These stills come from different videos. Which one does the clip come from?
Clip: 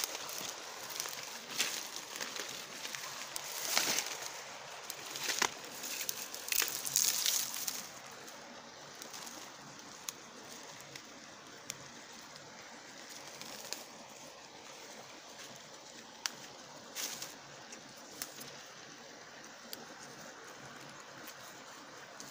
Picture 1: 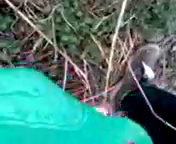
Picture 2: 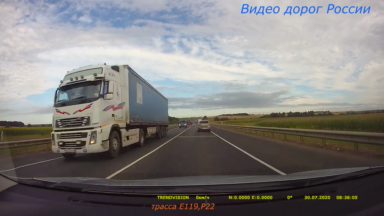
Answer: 1